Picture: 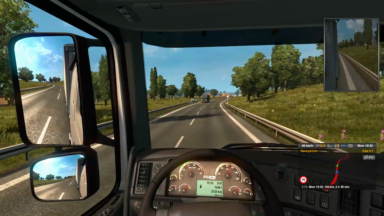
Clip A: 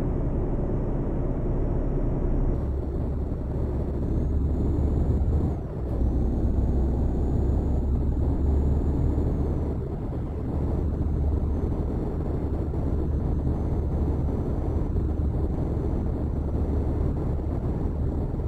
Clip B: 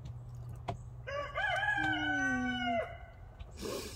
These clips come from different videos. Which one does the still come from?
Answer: A